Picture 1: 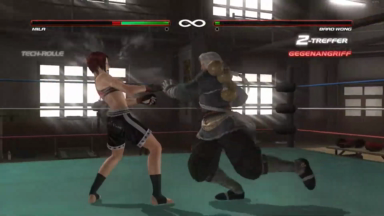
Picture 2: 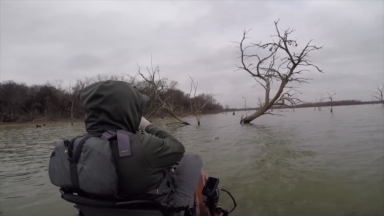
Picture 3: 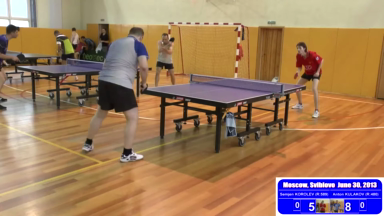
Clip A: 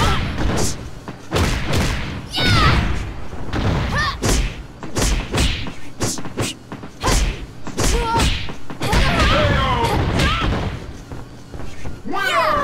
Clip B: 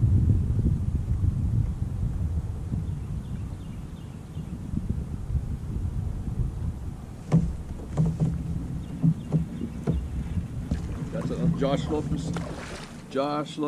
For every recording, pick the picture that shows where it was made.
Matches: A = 1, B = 2